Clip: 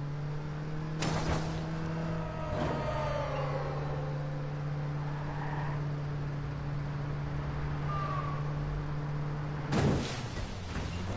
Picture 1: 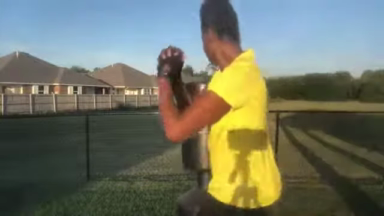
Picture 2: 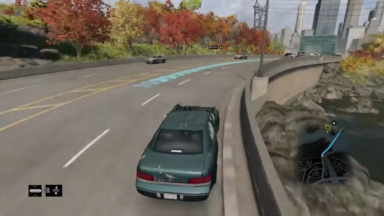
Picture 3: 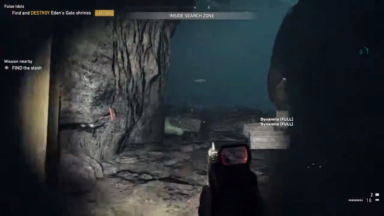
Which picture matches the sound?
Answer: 2